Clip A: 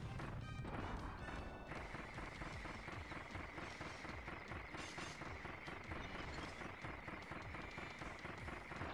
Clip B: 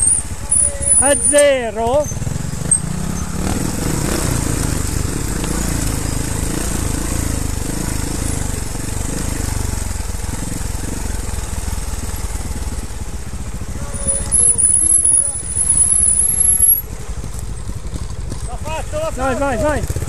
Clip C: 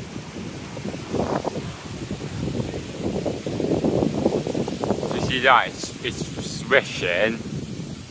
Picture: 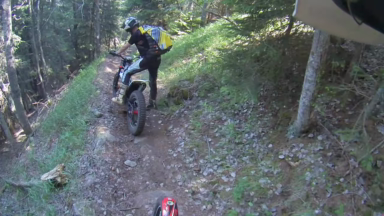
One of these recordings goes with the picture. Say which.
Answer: B